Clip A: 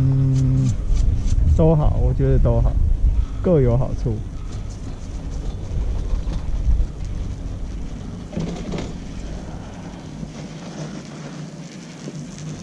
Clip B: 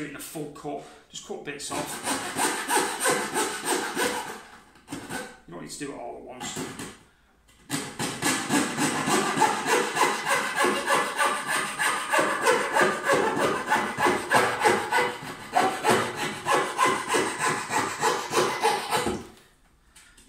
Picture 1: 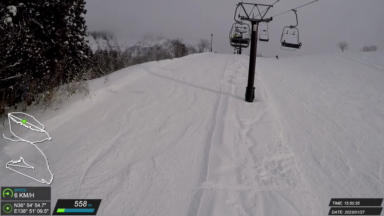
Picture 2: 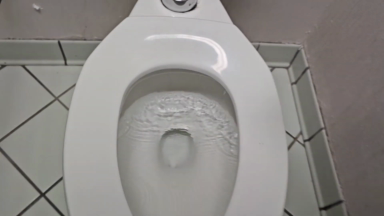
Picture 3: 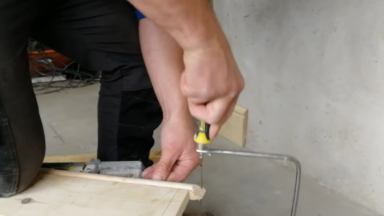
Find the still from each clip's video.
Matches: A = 1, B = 3